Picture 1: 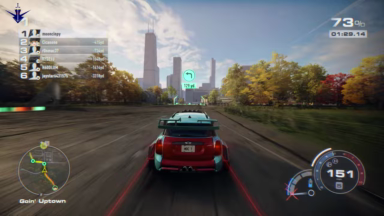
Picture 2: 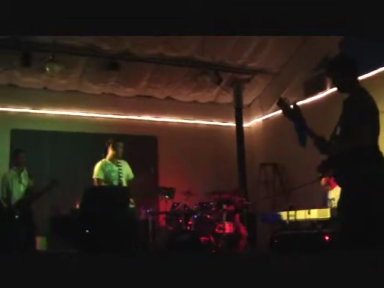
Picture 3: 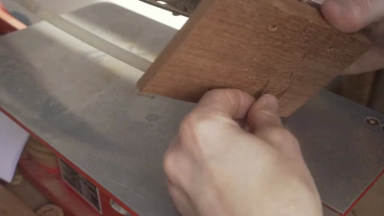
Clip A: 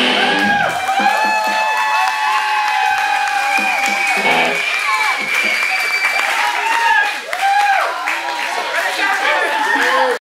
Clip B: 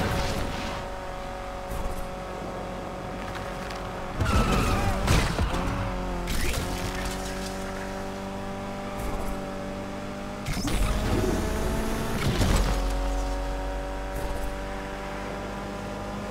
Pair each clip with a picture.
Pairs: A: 2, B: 1